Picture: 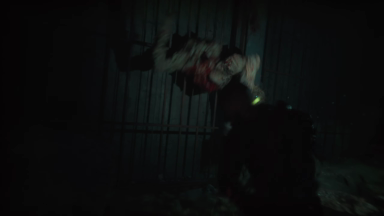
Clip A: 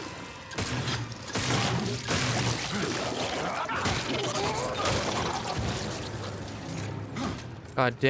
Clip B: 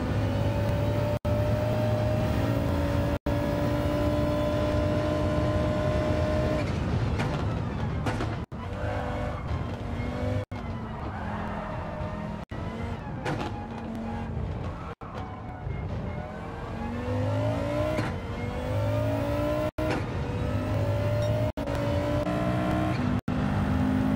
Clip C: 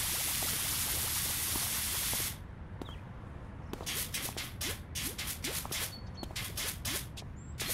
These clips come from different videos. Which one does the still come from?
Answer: A